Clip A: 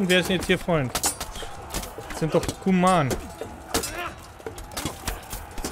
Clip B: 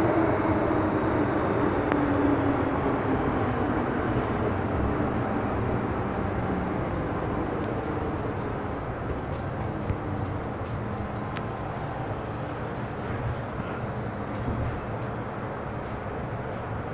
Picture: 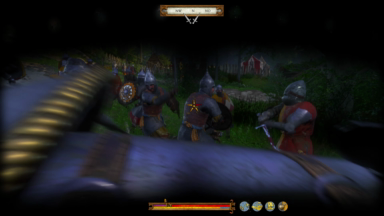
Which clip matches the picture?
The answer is A